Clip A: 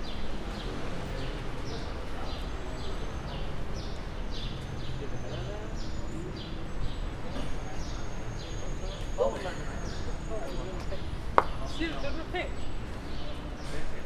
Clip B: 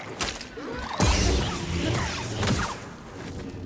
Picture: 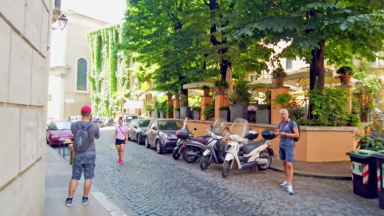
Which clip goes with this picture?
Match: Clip A